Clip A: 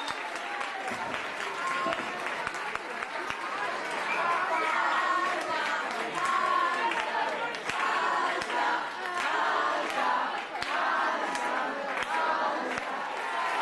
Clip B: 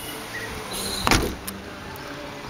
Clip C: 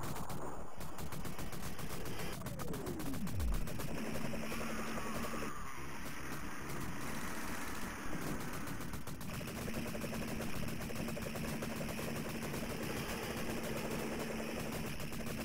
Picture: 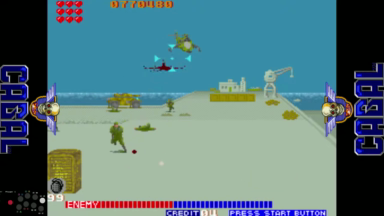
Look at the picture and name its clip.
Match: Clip C